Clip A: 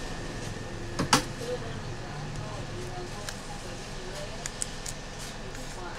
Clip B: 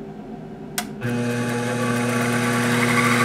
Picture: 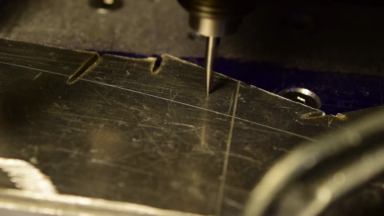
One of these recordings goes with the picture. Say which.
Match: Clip B